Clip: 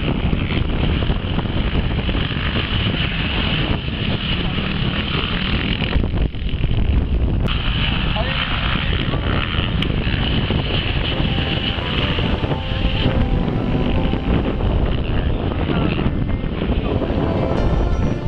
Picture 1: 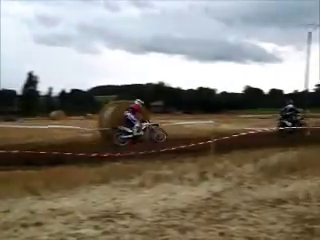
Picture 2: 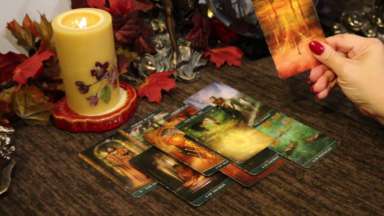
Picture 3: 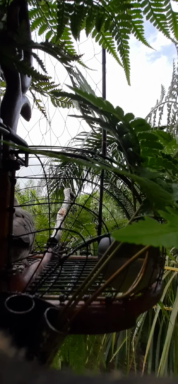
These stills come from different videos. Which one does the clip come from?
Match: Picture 1